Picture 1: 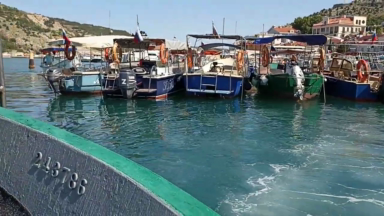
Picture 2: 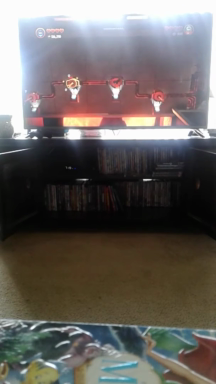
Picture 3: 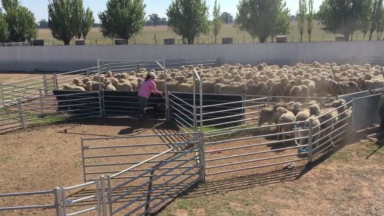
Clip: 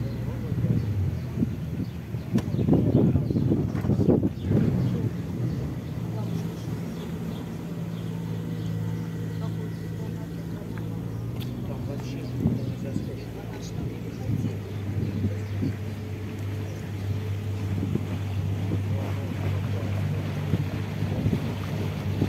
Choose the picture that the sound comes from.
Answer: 1